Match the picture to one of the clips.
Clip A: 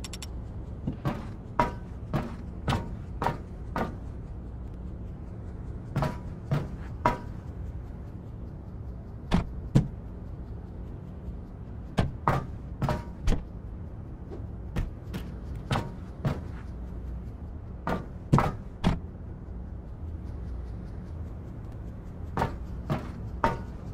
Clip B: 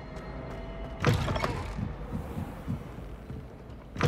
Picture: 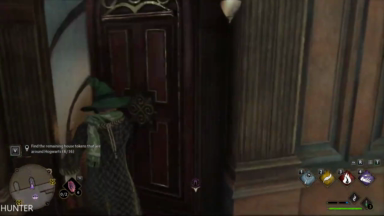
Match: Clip B